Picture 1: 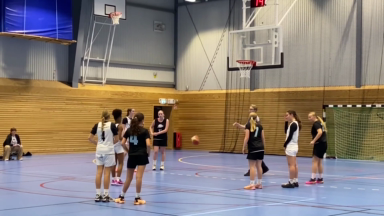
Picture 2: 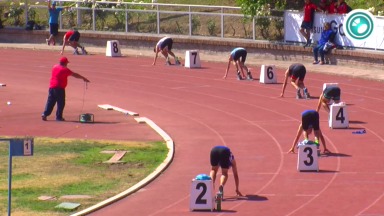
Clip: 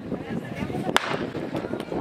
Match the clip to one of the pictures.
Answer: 2